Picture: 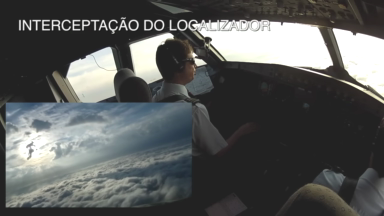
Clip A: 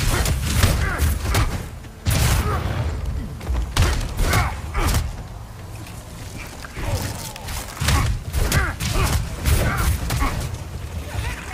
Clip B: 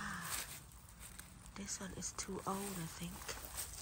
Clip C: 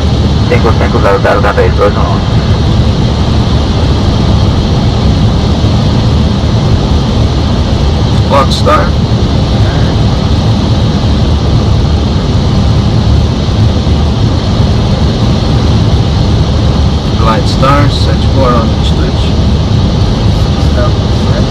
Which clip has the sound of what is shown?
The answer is C